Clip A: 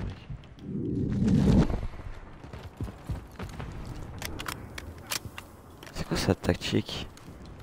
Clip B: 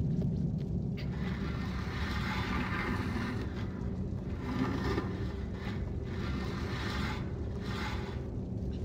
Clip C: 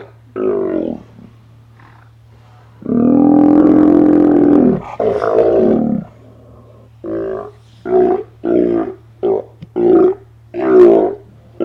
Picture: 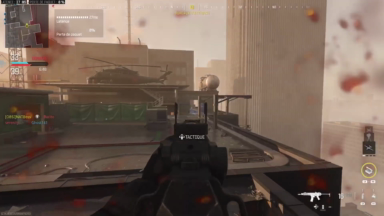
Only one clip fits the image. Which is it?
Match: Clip A